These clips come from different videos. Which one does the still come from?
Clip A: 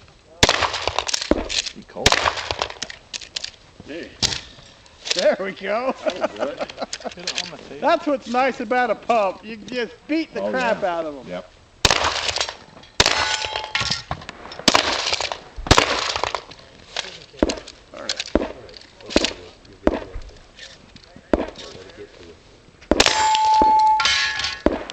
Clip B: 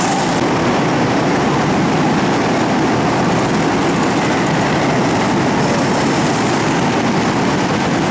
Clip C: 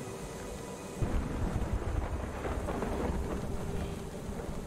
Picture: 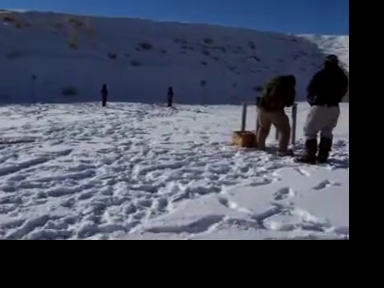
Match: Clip A